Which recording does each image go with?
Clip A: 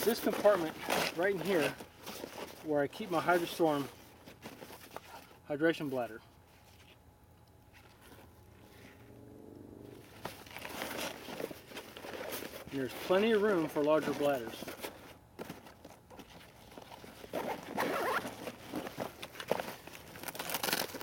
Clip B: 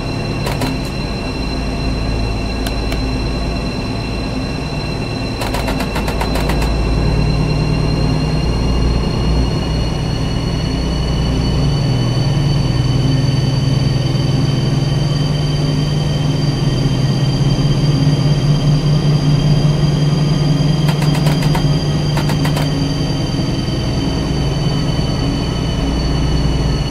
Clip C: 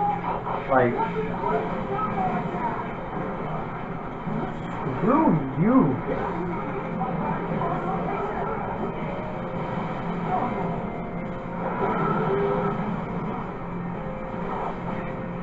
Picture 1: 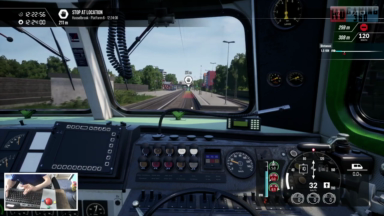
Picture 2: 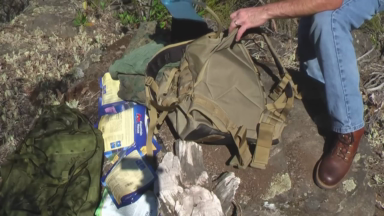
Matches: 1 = B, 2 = A